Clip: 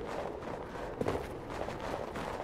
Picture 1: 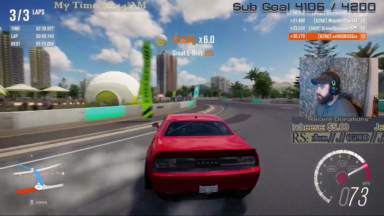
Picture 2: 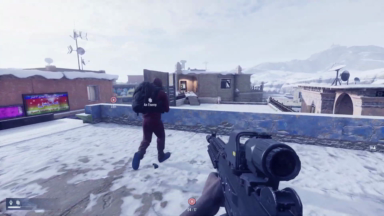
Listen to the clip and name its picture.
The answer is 2